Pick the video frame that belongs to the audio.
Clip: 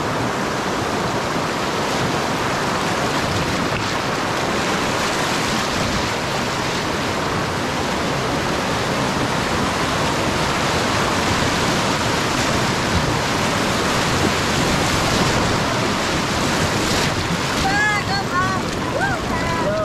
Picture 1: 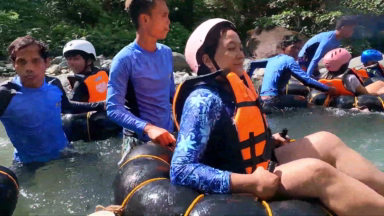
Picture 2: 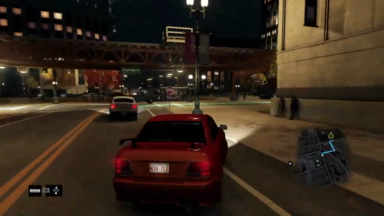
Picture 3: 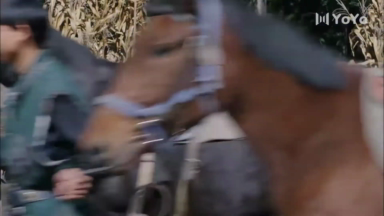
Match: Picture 1